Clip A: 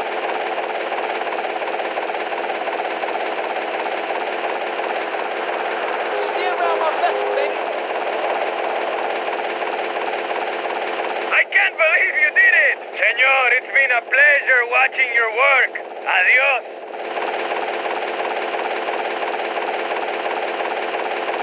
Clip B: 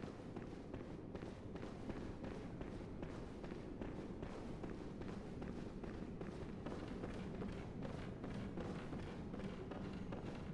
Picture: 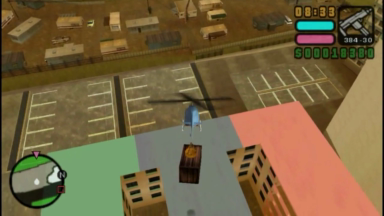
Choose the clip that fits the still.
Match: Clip A